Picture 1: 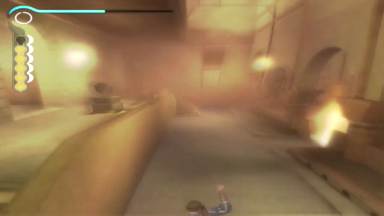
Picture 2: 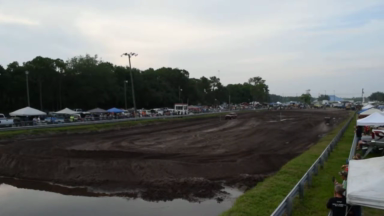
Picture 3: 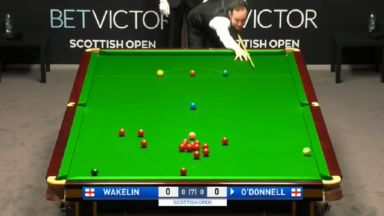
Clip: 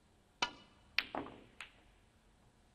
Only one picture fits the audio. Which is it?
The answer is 3